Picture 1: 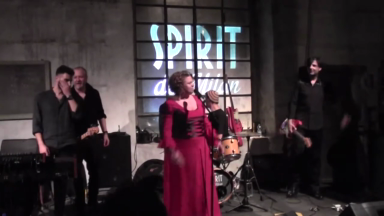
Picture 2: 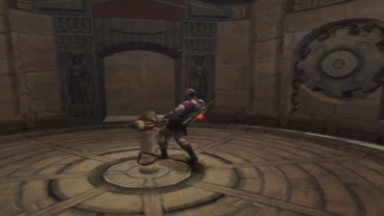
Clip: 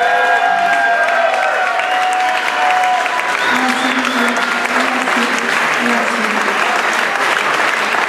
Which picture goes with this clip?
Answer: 1